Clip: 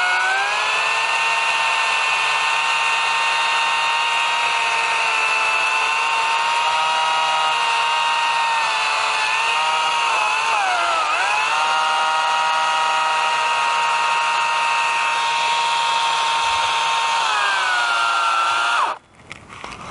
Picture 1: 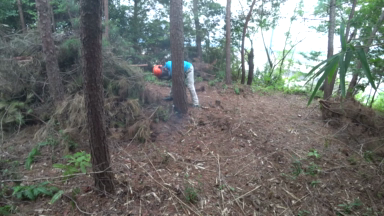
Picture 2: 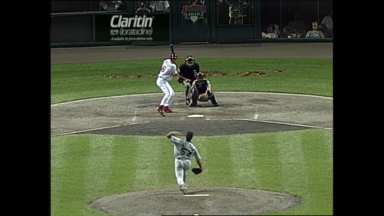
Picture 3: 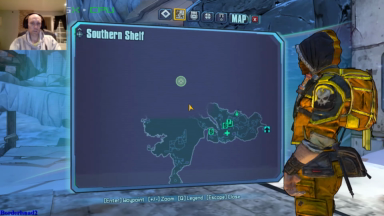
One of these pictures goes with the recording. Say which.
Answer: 1